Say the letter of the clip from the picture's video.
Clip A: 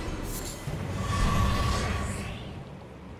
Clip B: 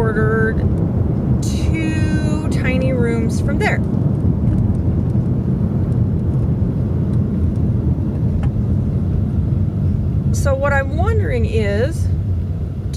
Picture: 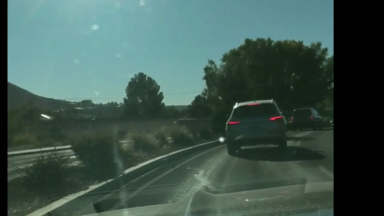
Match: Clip B